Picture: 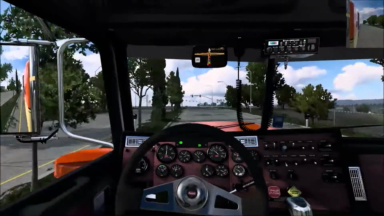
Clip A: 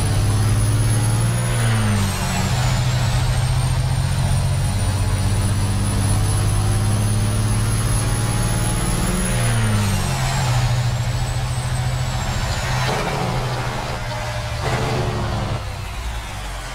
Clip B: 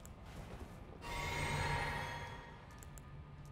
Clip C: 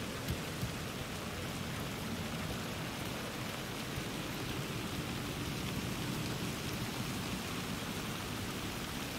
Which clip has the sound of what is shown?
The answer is A